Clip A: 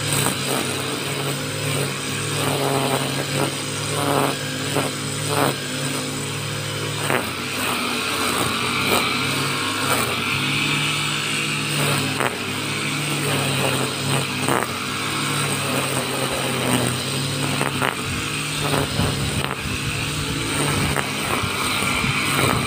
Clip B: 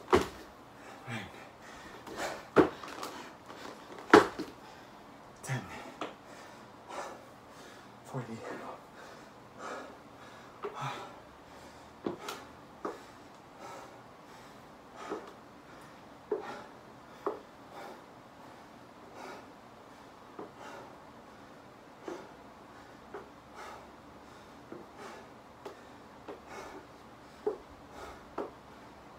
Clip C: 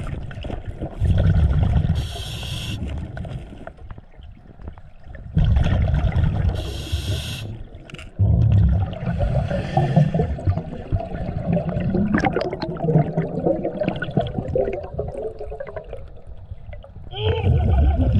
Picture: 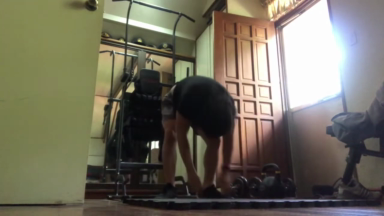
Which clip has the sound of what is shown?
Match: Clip B